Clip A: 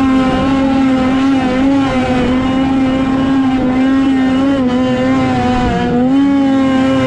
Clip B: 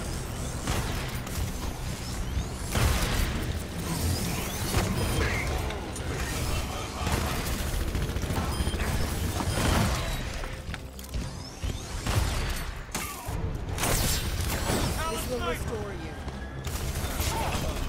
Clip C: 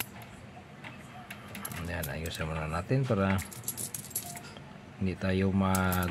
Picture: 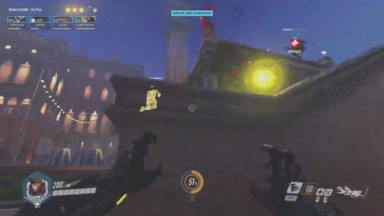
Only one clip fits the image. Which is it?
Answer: B